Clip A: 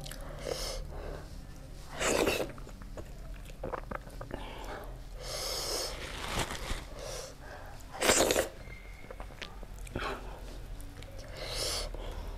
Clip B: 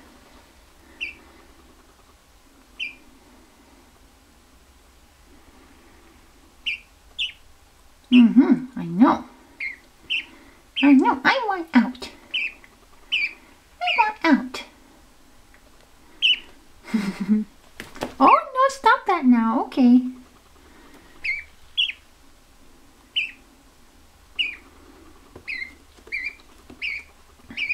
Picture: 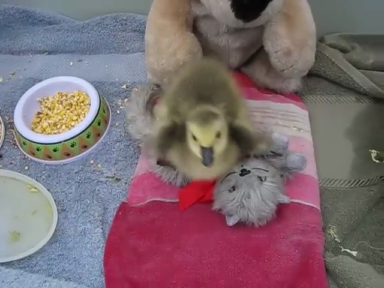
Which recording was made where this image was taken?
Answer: B